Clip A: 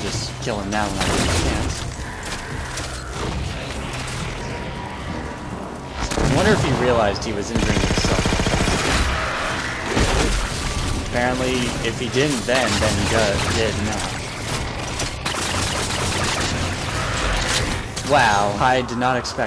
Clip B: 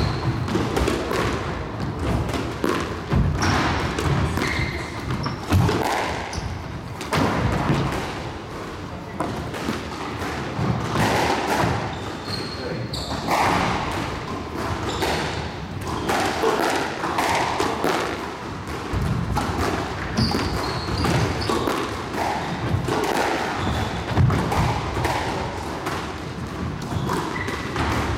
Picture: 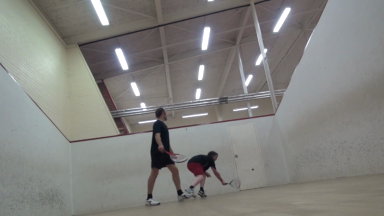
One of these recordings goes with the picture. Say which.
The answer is B